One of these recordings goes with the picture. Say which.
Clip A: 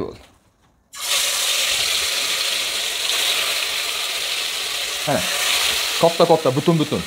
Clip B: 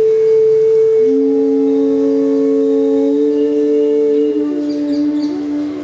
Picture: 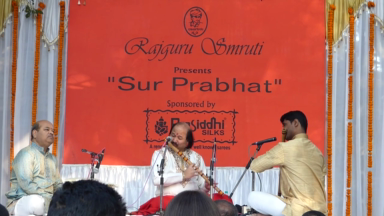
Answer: B